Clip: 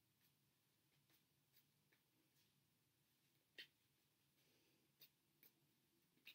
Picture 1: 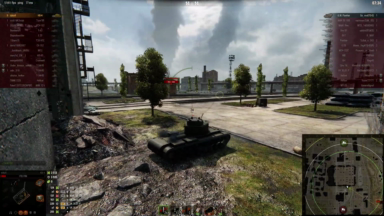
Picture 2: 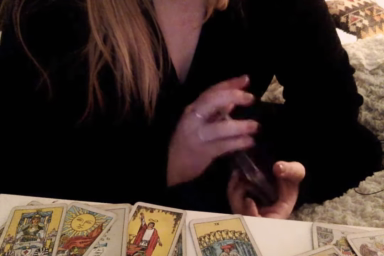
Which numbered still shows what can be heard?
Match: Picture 2